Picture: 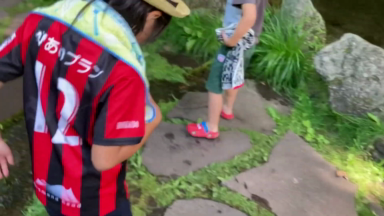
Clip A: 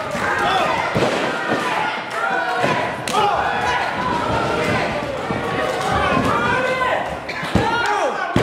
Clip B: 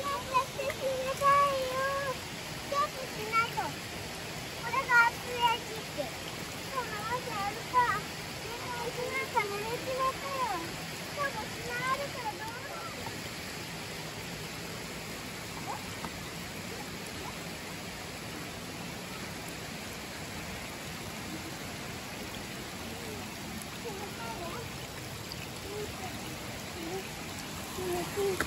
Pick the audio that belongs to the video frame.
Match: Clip B